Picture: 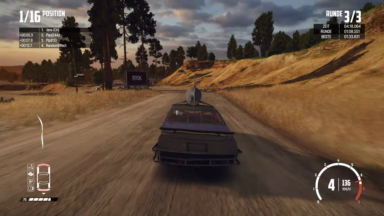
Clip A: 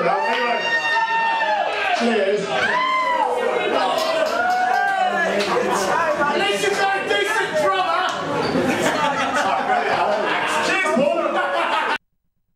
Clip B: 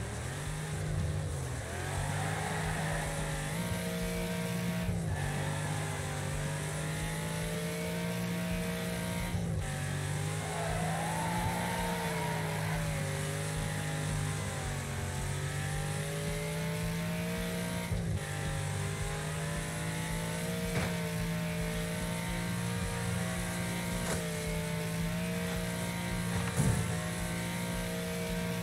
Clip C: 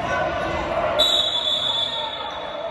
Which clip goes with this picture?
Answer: B